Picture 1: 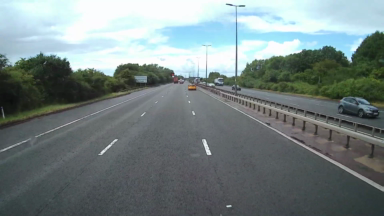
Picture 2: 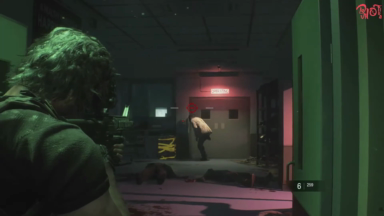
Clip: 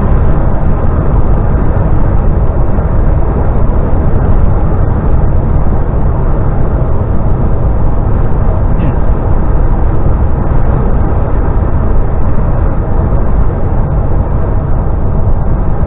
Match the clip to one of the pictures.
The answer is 1